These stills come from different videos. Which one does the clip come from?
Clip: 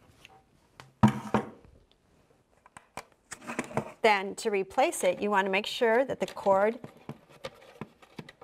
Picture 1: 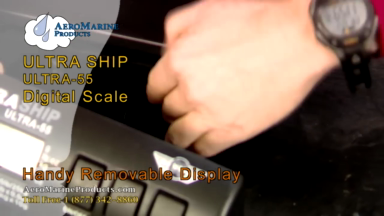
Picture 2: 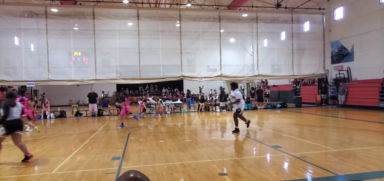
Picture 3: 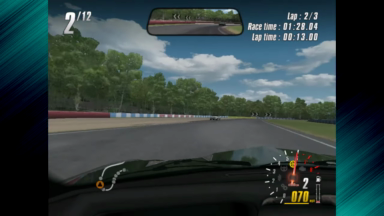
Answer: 1